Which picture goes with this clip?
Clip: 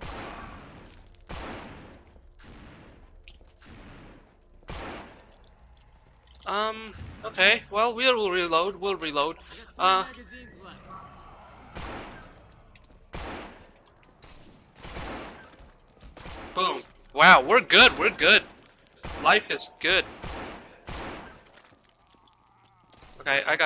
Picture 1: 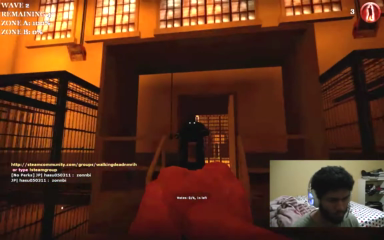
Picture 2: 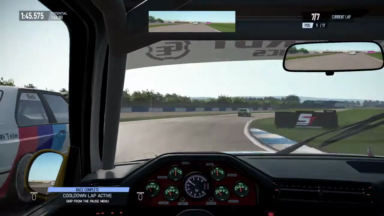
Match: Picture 1